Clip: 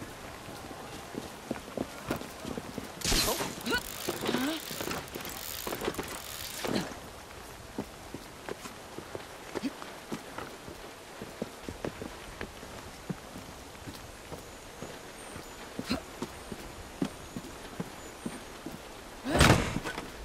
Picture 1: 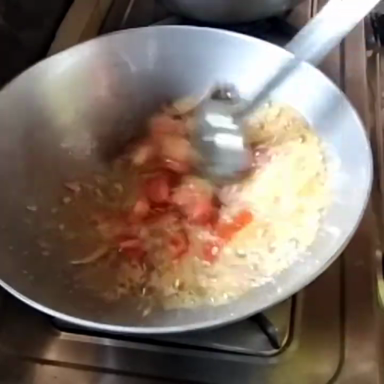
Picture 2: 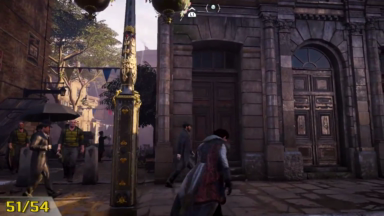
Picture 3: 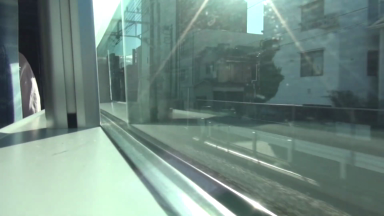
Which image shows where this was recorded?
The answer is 2